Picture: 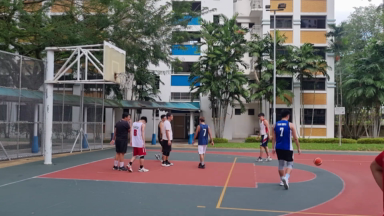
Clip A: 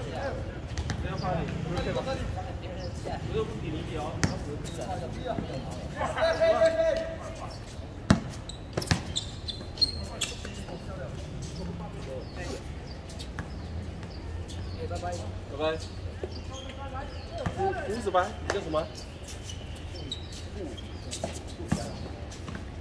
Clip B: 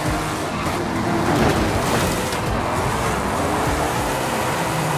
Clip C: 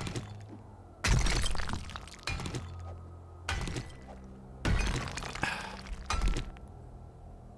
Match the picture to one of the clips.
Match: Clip A